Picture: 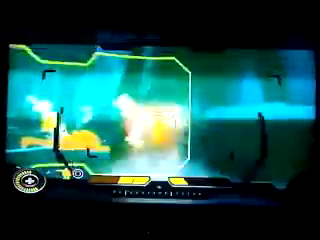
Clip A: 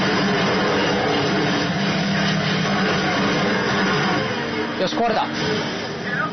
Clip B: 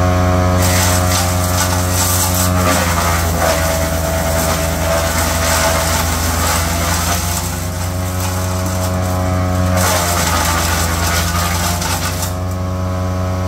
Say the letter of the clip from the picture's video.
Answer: A